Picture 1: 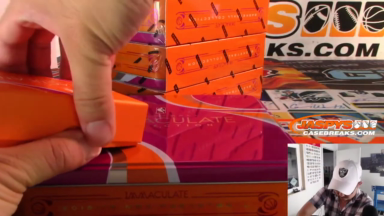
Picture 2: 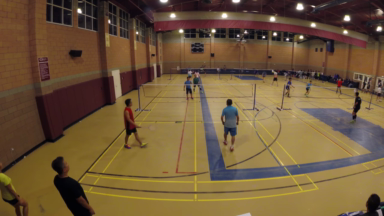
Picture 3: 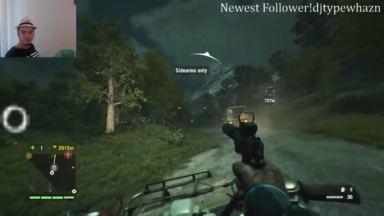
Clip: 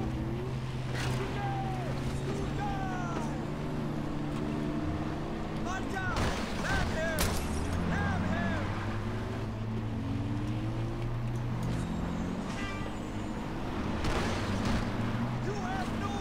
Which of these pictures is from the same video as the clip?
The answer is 3